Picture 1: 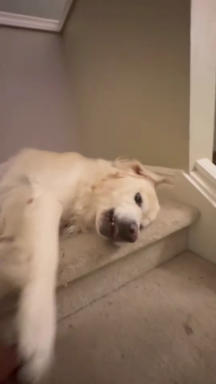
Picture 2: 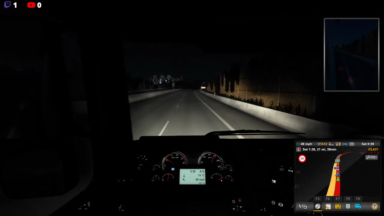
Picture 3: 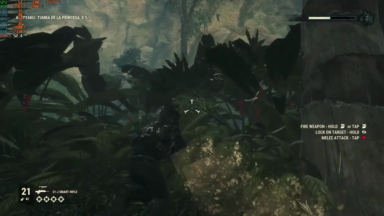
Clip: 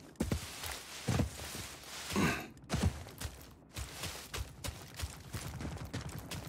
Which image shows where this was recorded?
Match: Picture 3